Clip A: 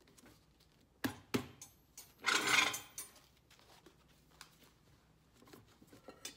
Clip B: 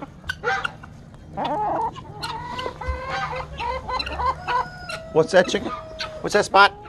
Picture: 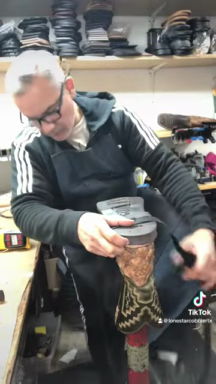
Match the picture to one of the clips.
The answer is A